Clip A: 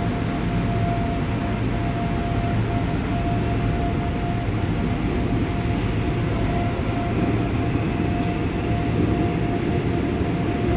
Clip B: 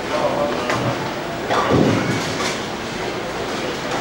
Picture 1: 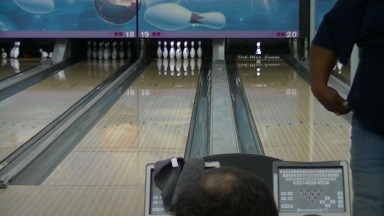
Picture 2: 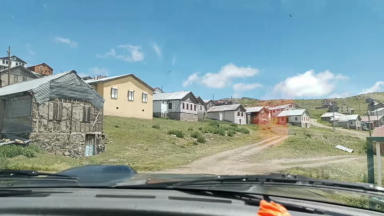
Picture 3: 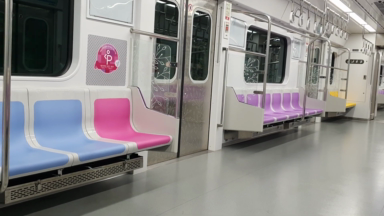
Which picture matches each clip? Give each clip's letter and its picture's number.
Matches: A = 3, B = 1